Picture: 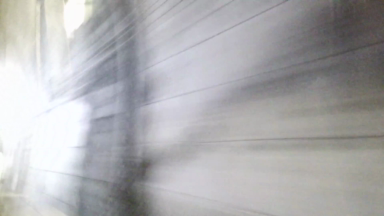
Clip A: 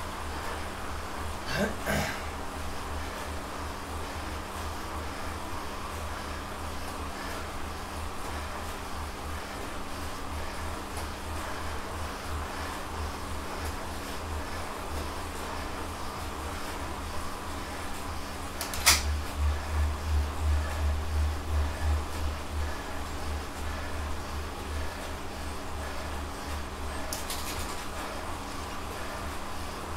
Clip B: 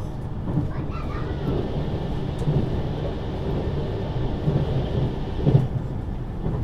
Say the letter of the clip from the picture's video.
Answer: B